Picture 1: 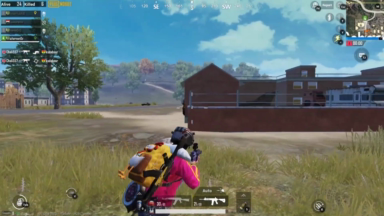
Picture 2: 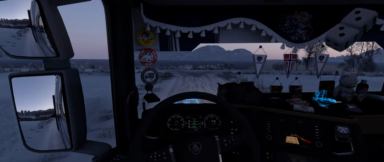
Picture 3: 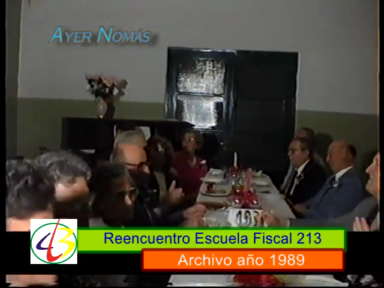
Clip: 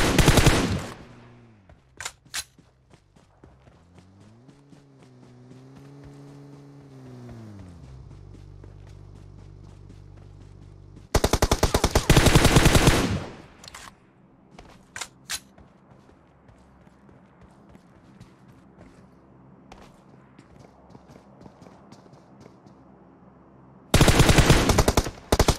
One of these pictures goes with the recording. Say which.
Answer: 1